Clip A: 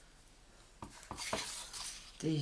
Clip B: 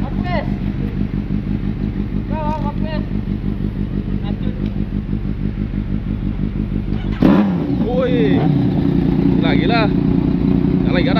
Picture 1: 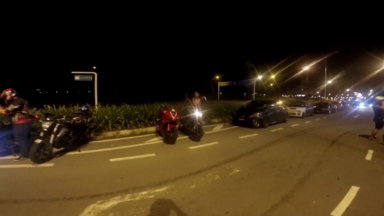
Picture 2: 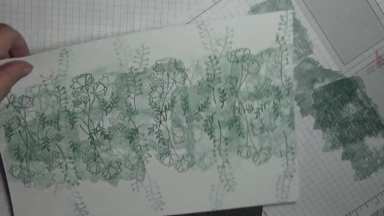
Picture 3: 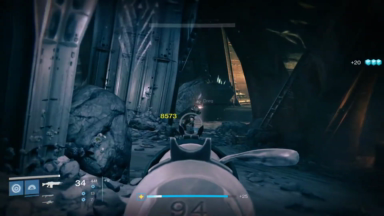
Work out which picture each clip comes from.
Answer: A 2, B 1